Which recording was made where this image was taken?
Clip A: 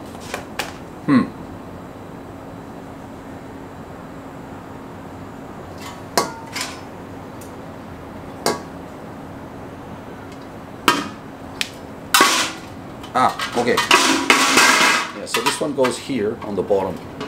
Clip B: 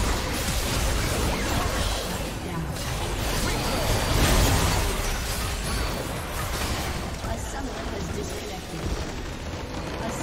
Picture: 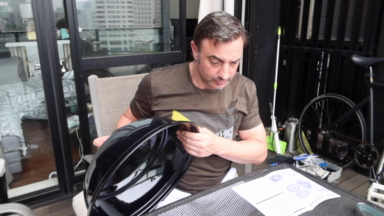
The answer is A